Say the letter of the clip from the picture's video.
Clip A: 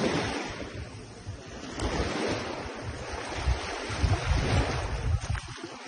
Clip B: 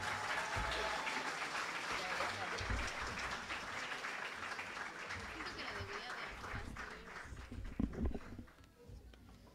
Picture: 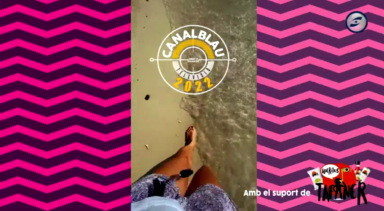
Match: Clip A